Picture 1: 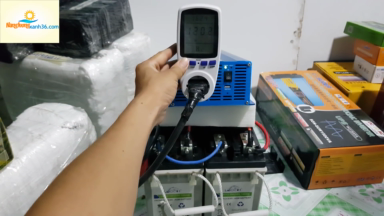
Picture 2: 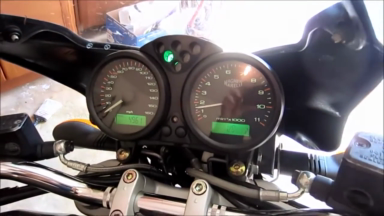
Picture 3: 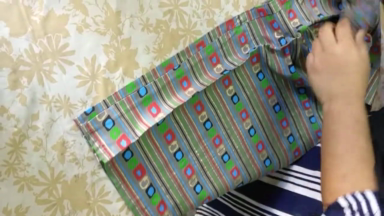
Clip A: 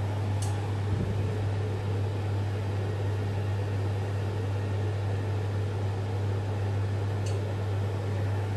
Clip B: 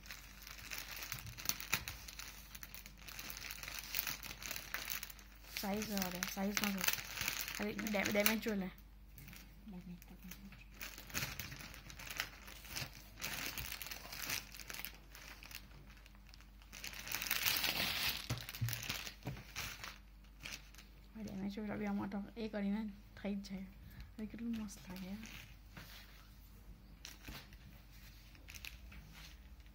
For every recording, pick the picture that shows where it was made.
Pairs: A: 1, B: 3